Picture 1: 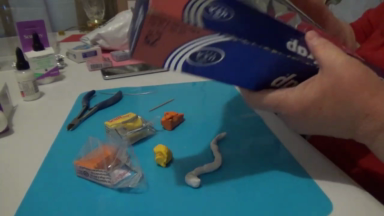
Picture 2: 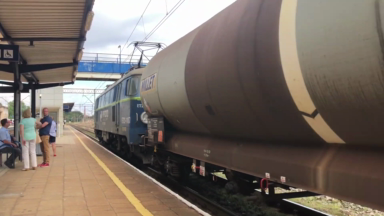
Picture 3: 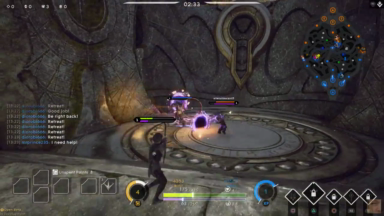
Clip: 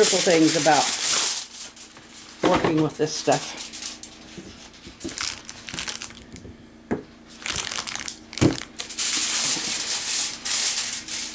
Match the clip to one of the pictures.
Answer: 1